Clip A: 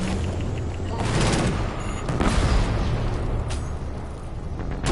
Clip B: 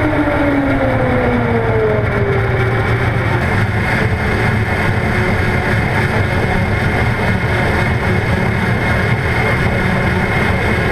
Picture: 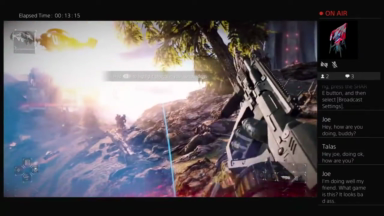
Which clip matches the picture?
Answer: A